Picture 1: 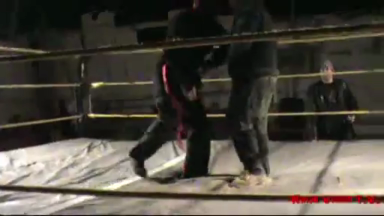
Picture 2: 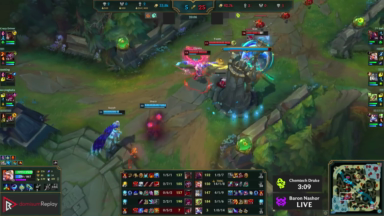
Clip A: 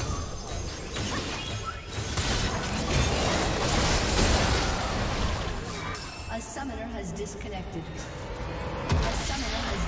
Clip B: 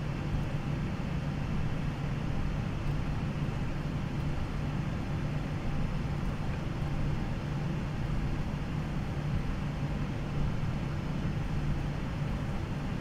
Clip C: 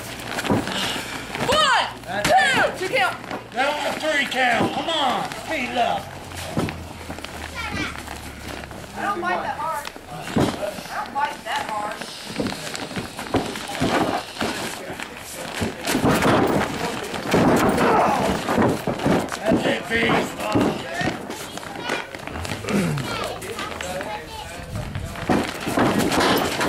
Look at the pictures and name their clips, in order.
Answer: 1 C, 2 A